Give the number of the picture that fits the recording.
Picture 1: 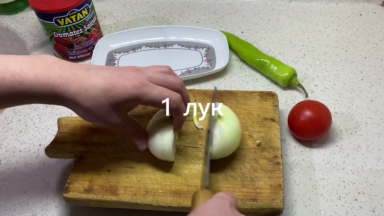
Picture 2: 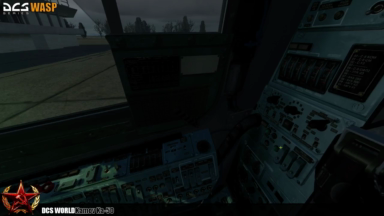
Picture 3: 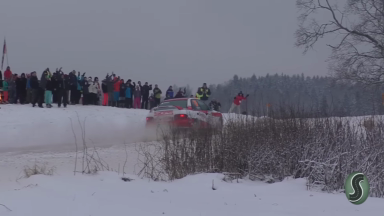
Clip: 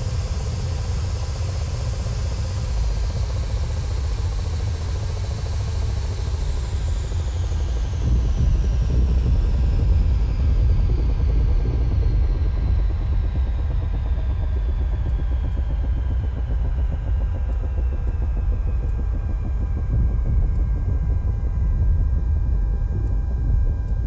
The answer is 2